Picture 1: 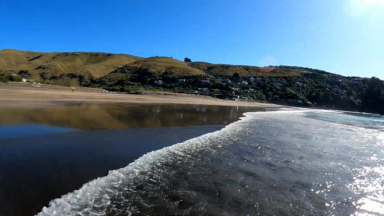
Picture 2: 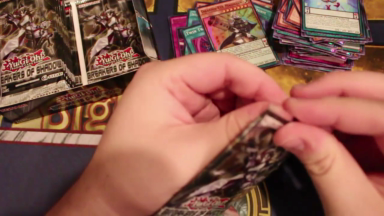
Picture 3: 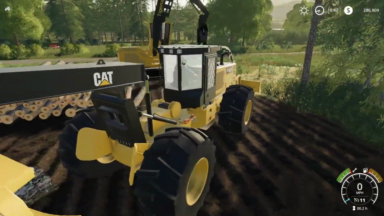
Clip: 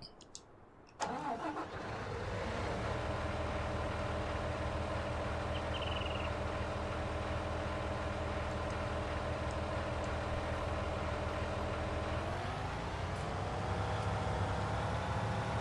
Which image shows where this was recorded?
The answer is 3